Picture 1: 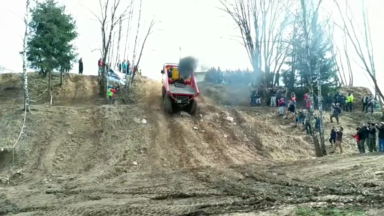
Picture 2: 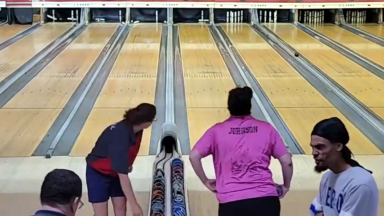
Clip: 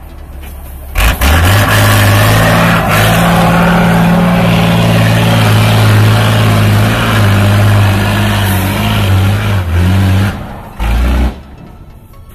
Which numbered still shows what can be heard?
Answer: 1